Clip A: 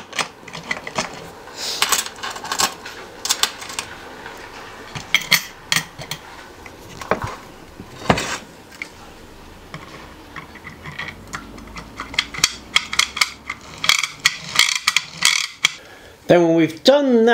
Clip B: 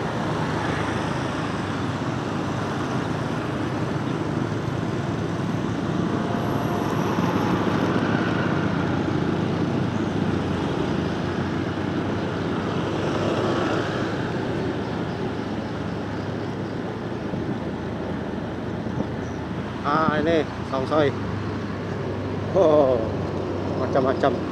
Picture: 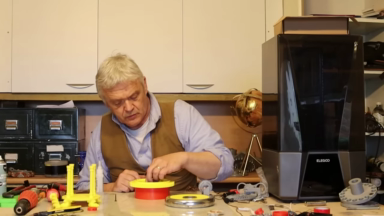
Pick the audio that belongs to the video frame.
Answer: A